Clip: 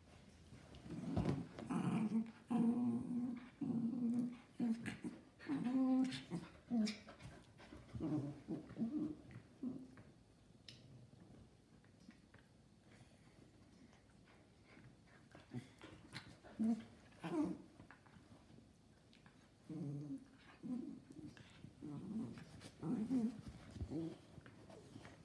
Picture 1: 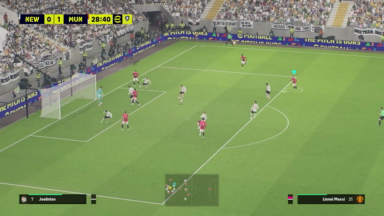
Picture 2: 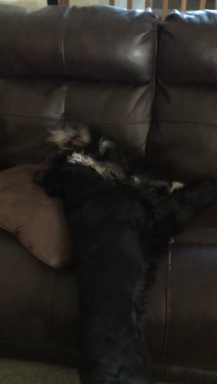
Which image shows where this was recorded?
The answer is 2